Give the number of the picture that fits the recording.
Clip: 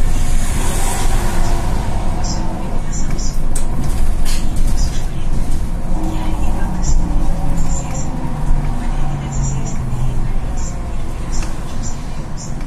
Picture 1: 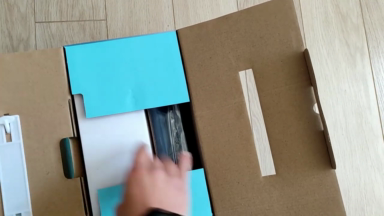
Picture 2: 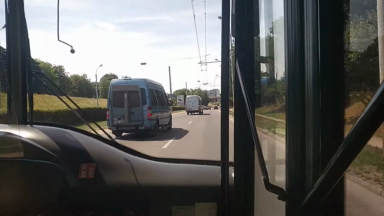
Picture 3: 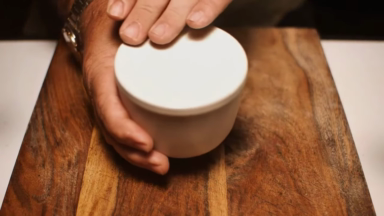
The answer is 2